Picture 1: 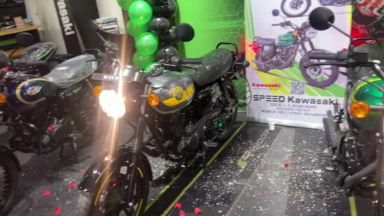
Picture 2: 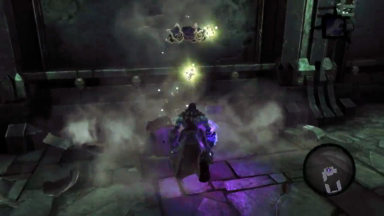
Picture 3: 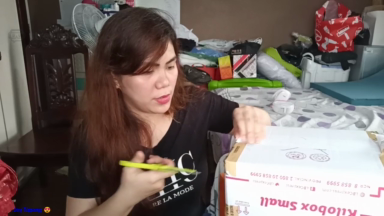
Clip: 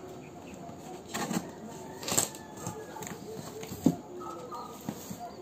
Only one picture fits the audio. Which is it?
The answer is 3